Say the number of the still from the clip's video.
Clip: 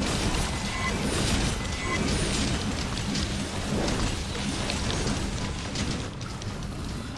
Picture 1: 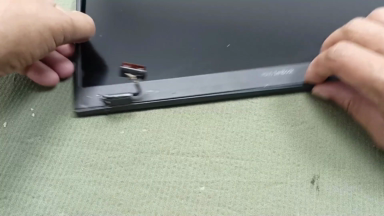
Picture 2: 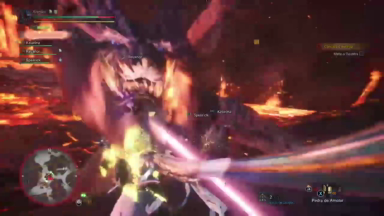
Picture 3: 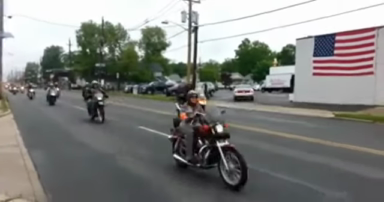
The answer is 2